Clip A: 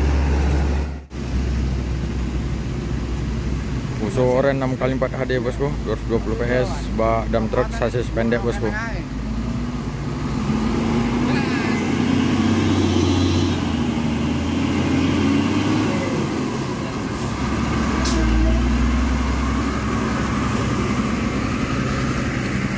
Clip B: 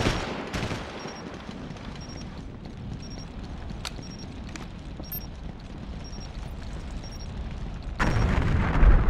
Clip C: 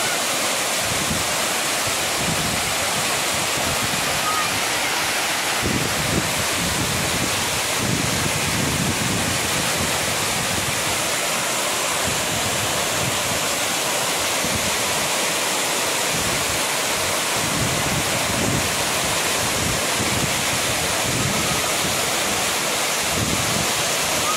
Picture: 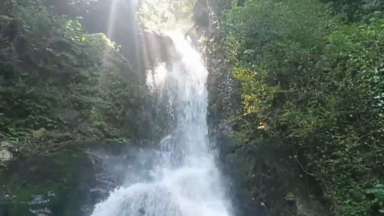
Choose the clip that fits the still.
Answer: C